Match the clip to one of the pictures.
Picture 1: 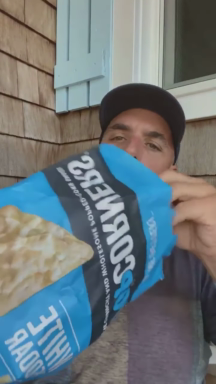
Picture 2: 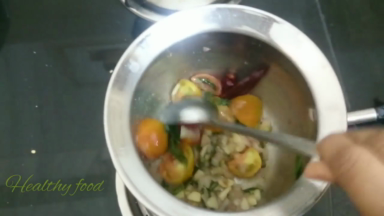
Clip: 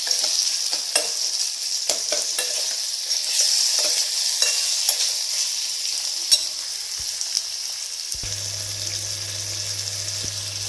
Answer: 2